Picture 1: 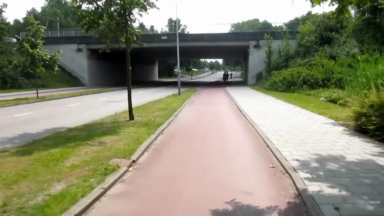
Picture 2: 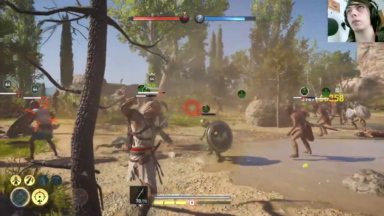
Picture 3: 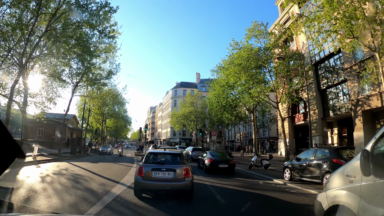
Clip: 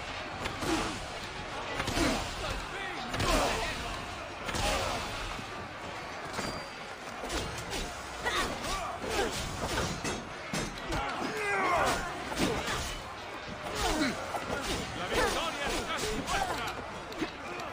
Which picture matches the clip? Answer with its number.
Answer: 2